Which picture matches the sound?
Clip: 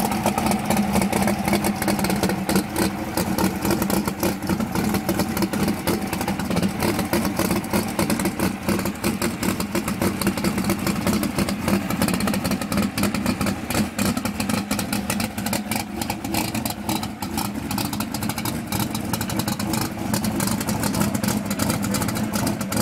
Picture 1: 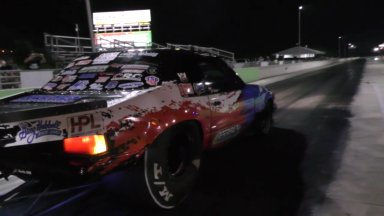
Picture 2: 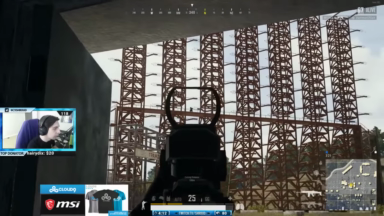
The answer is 1